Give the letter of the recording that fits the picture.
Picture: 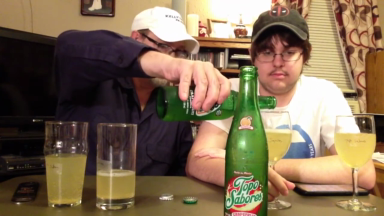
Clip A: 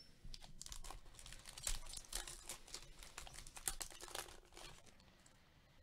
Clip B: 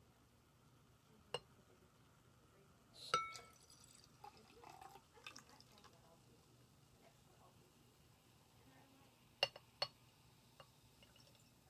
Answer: B